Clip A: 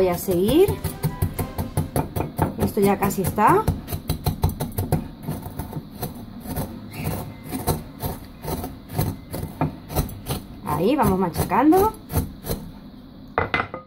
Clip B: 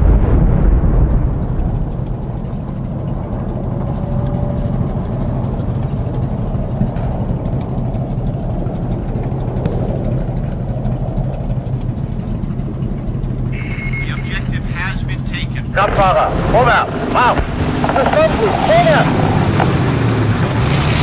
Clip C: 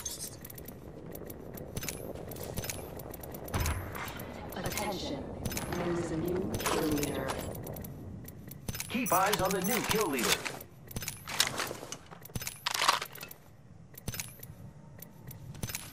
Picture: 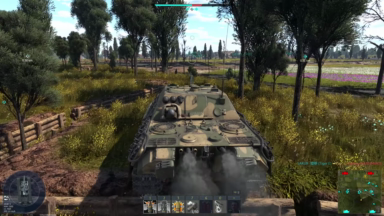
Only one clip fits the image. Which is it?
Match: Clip B